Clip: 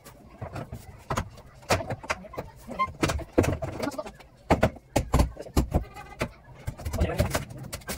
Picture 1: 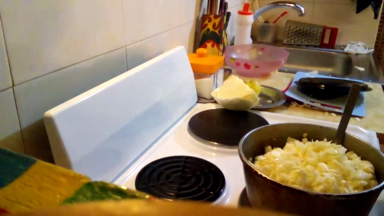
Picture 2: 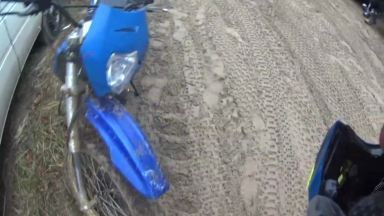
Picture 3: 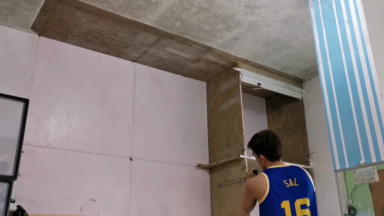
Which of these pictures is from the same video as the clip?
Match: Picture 3